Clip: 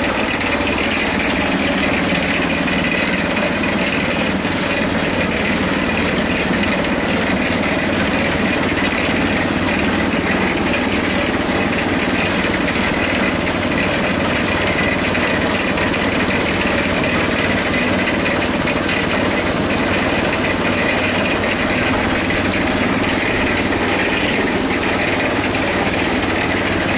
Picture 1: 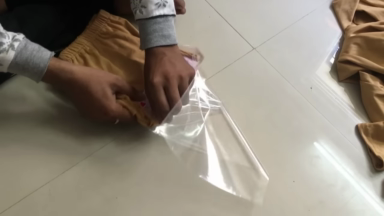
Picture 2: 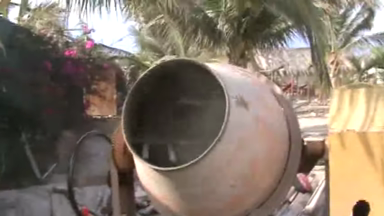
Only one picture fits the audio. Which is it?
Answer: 2